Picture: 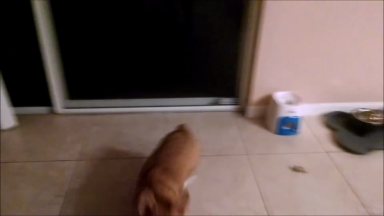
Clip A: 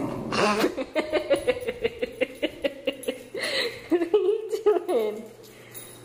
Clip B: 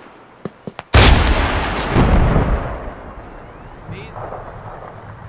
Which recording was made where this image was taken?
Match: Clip A